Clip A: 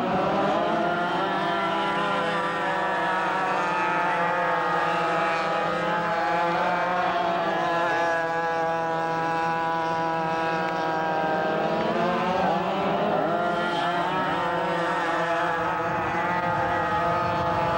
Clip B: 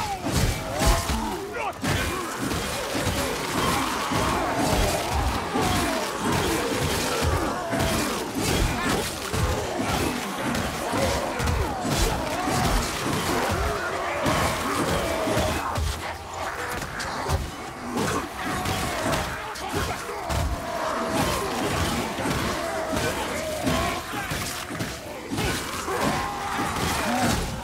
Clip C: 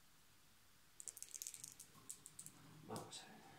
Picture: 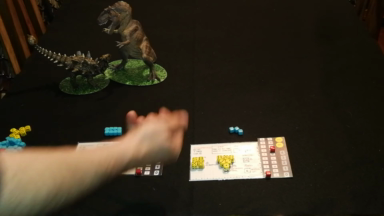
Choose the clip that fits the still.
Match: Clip C